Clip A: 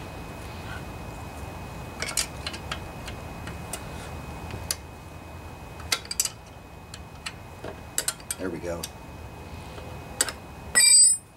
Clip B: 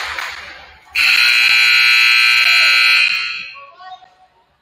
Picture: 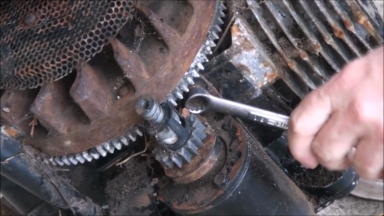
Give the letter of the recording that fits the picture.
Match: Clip A